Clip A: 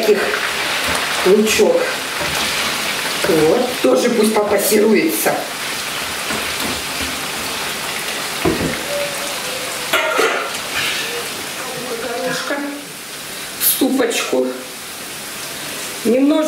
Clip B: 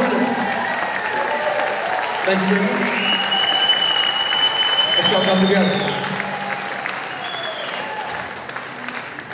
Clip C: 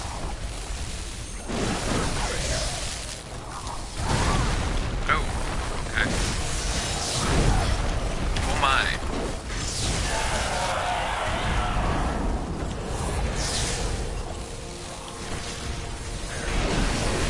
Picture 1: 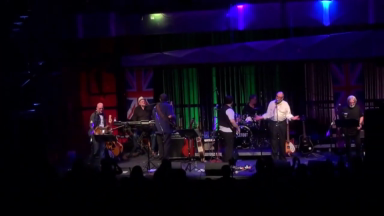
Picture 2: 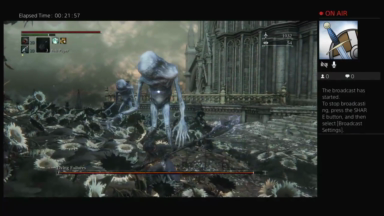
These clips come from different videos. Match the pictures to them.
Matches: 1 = B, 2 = C